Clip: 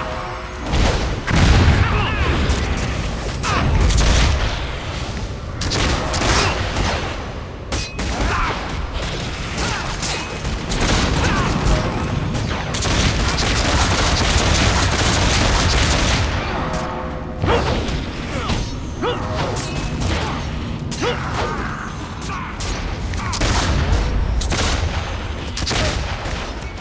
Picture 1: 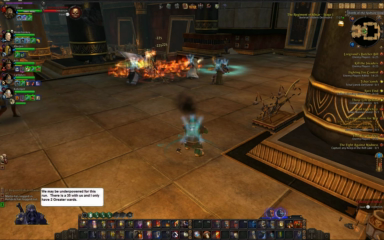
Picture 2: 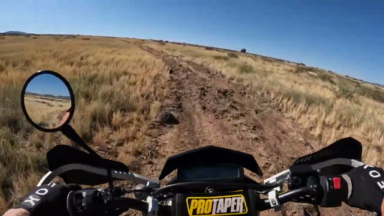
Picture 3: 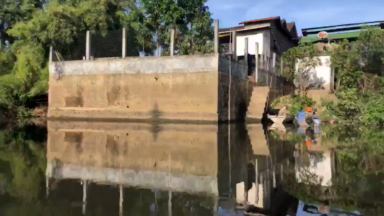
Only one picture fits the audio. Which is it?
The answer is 1